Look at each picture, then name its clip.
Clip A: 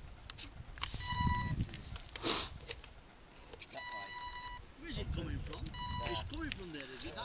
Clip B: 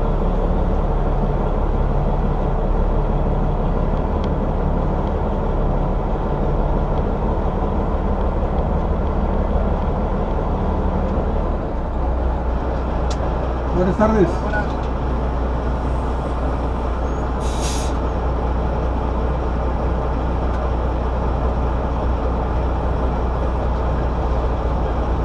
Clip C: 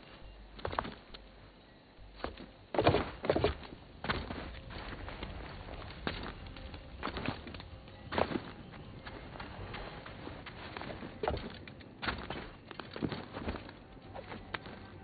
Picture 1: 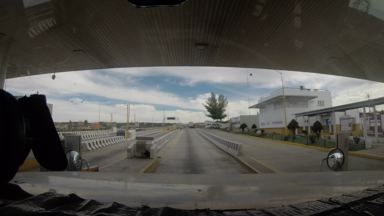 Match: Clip B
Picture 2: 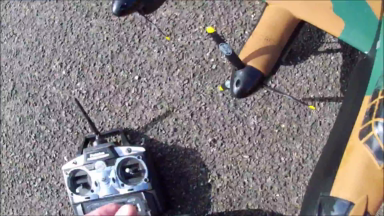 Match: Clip A